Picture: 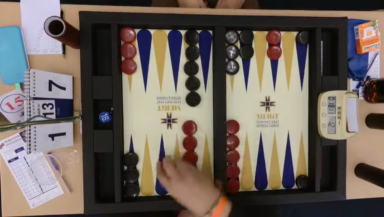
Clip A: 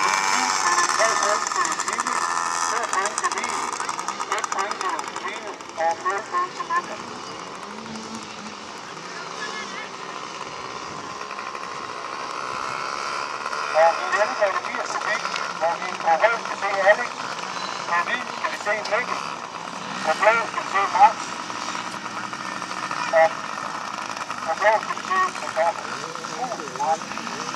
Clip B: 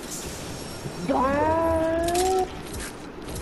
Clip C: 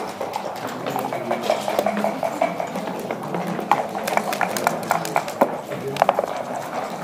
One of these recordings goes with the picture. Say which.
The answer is C